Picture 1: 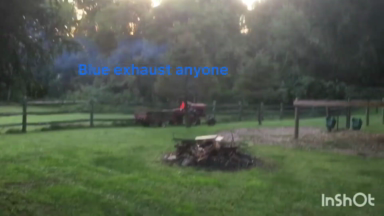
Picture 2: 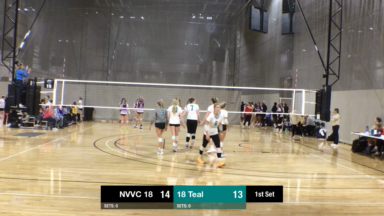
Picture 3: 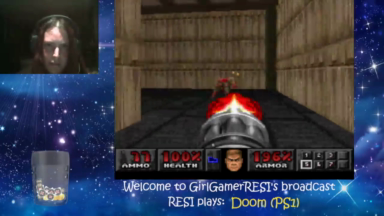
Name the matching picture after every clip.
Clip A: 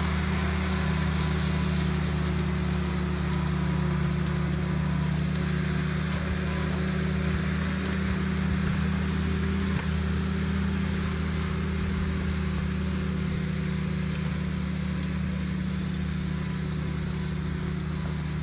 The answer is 1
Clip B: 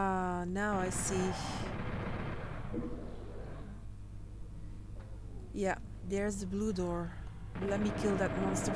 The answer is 3